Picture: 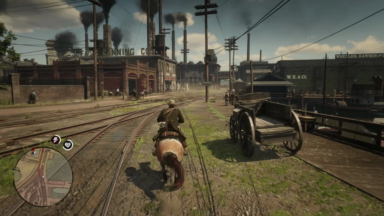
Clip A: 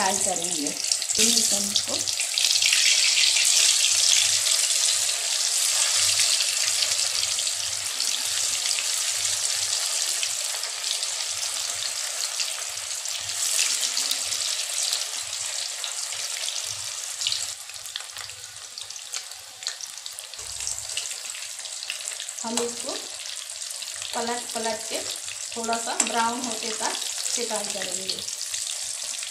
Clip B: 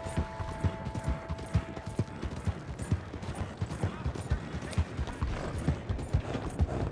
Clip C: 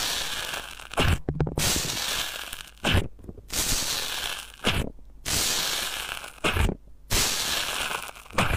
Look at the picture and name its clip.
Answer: B